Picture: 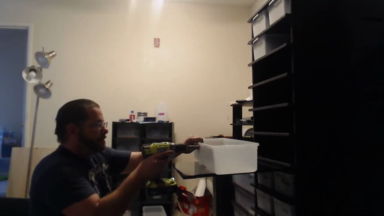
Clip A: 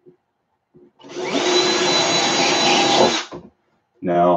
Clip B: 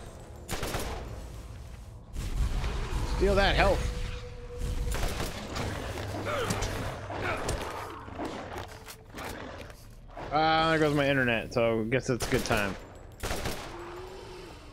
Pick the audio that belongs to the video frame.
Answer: A